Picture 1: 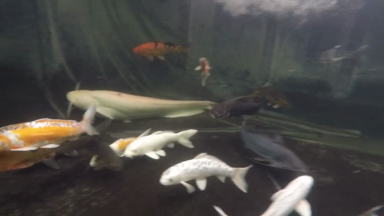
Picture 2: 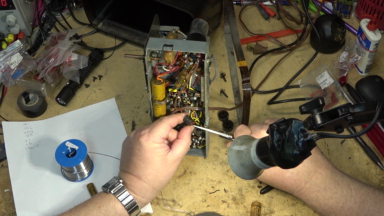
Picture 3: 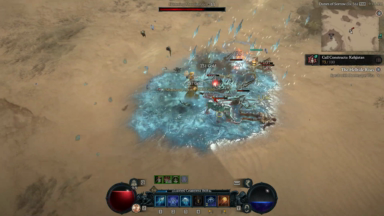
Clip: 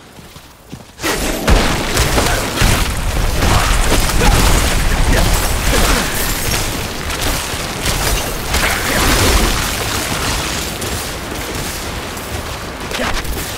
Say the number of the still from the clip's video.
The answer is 3